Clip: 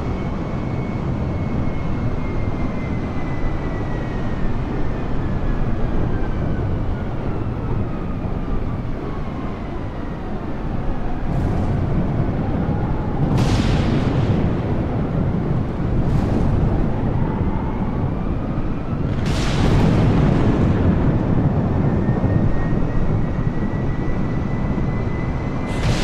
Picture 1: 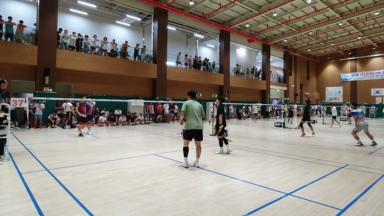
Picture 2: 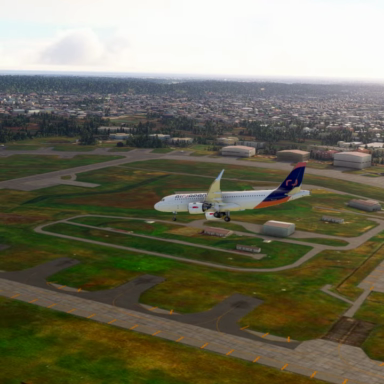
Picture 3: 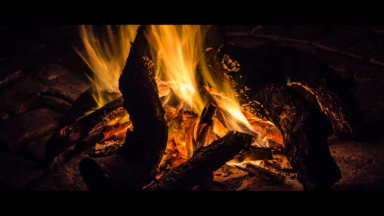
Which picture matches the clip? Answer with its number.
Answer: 2